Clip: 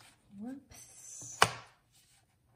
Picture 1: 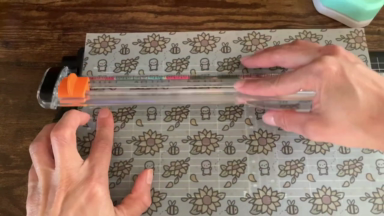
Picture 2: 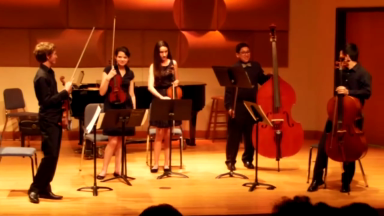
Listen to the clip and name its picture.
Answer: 1